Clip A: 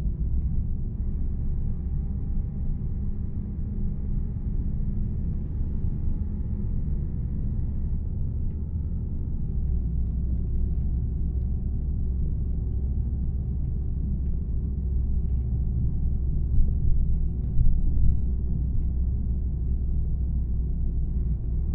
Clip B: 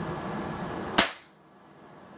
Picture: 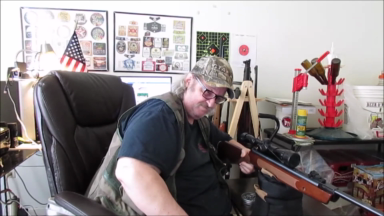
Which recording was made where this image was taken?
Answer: B